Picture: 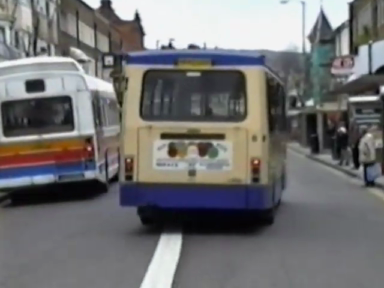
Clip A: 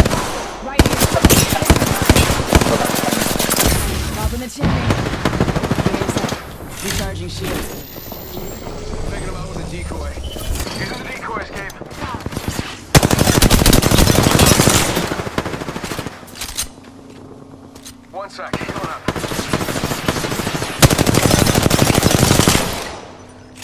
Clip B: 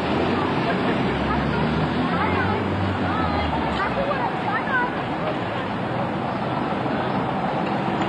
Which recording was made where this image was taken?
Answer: B